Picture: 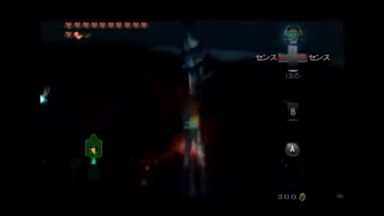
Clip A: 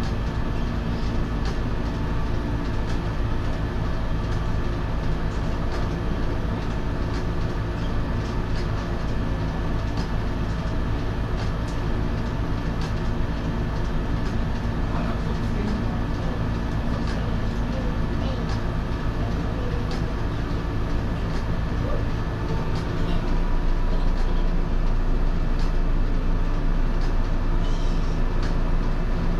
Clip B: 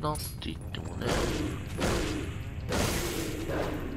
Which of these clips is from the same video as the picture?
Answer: B